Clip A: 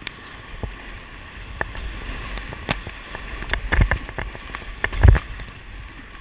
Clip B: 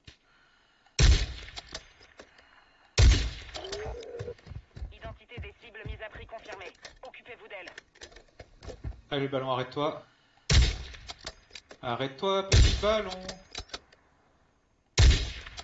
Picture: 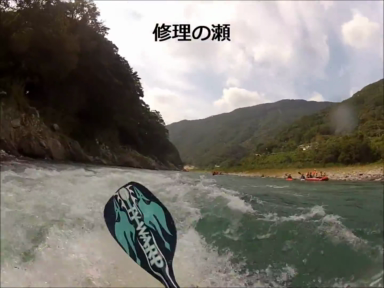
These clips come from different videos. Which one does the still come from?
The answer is A